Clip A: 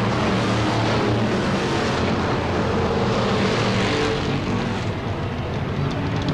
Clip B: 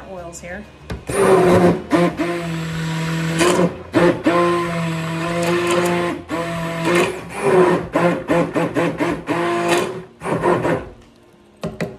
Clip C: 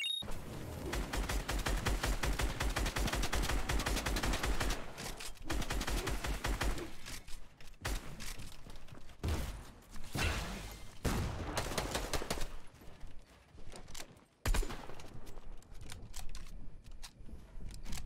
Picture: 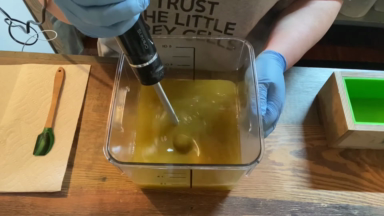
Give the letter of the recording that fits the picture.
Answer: B